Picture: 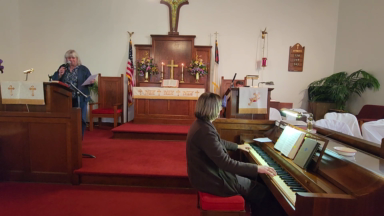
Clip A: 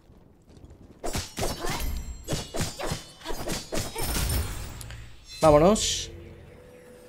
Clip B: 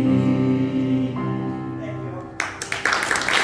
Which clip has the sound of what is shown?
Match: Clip B